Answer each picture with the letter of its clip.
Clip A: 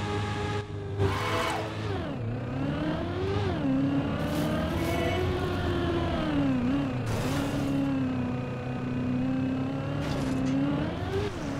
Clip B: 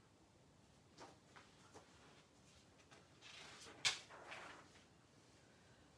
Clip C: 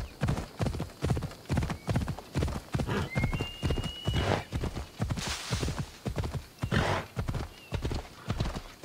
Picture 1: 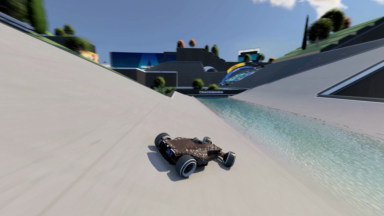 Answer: A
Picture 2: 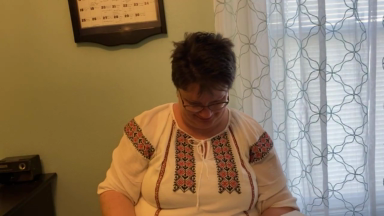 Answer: B